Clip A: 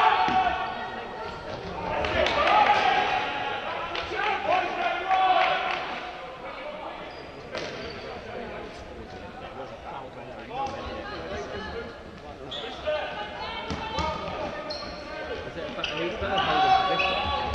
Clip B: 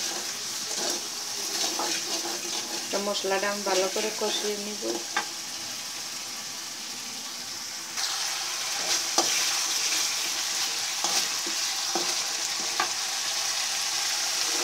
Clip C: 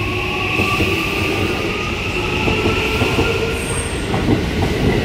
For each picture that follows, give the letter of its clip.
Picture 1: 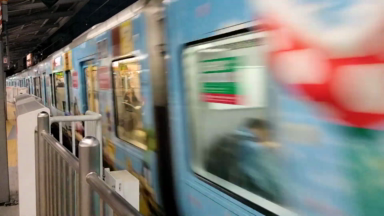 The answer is C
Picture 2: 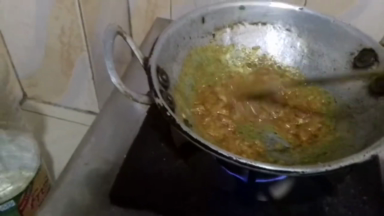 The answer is B